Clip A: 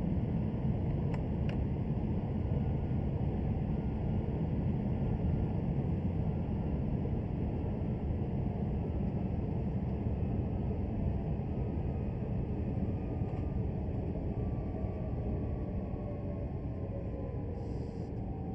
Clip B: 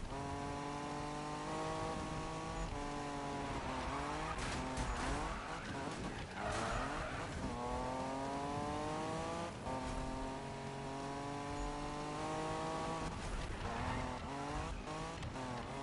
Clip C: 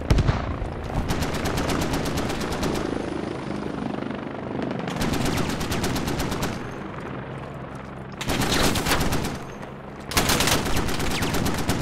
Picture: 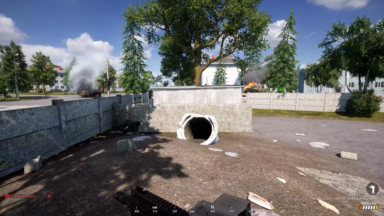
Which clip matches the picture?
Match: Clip C